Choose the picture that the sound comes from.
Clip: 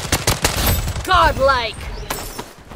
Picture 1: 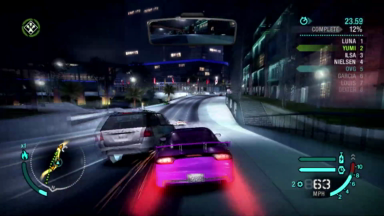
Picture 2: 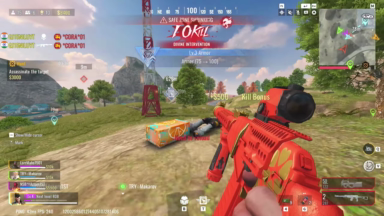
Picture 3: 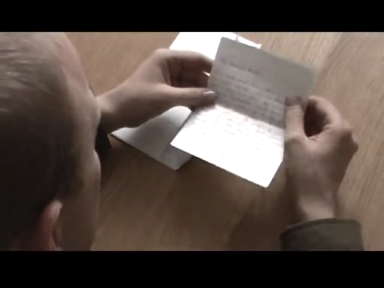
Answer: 2